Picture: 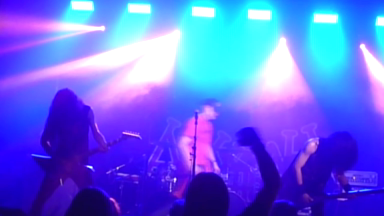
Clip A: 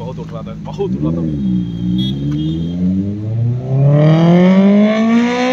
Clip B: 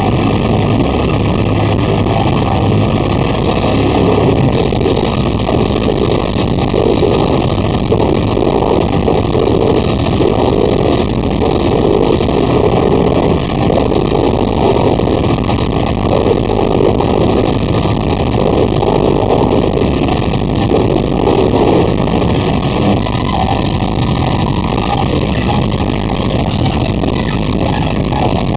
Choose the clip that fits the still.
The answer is B